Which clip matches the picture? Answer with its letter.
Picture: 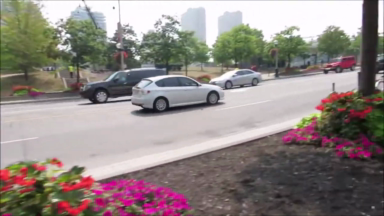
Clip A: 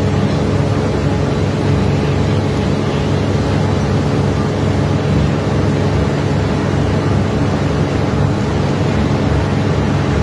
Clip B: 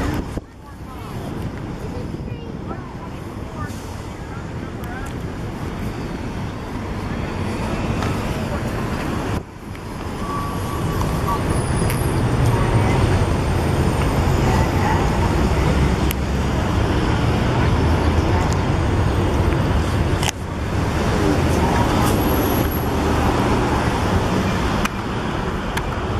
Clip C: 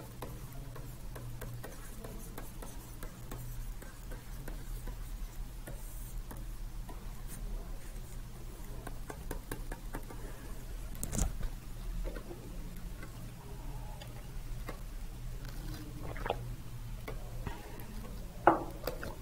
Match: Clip B